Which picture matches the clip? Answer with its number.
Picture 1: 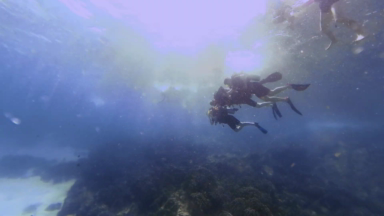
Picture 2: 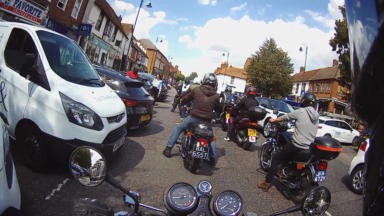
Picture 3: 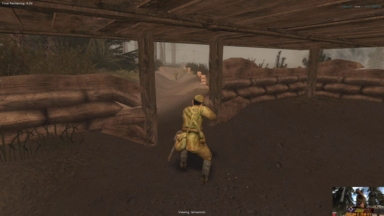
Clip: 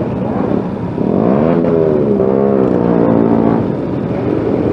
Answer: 2